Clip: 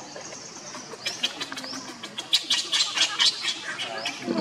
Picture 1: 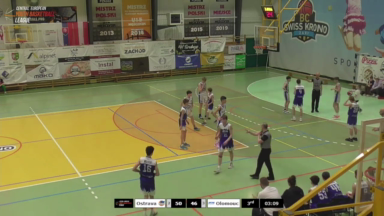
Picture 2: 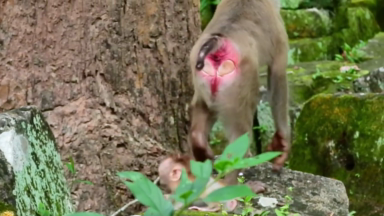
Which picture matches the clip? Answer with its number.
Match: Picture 2